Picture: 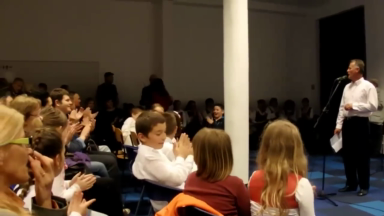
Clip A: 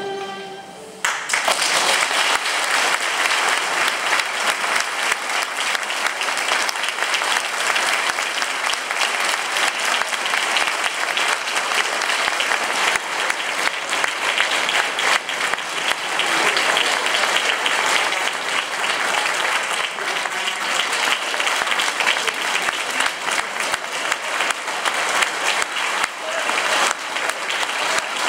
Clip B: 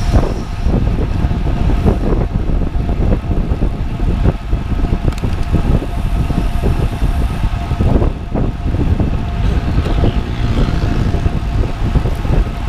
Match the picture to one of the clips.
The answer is A